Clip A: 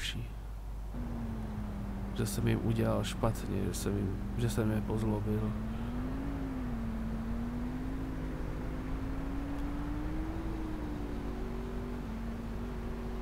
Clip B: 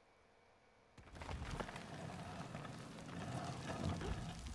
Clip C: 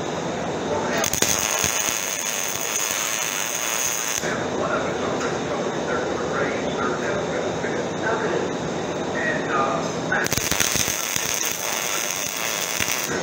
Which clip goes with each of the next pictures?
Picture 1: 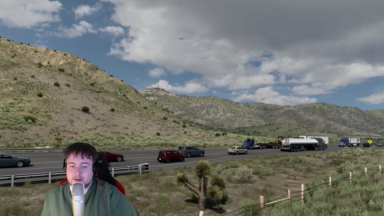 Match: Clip A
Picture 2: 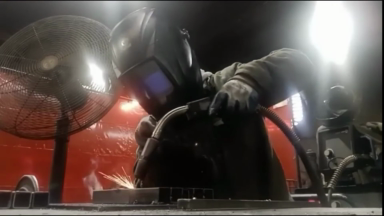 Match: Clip C